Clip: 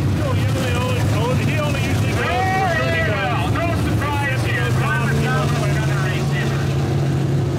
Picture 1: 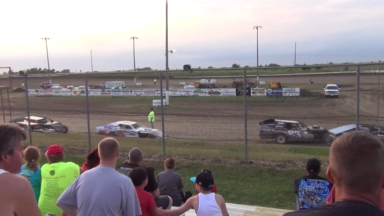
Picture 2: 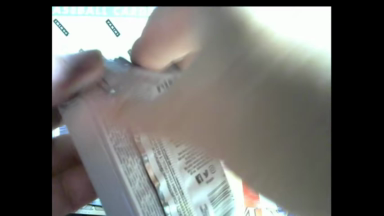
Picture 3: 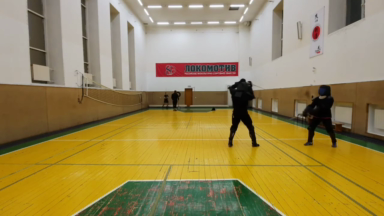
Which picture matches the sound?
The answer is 1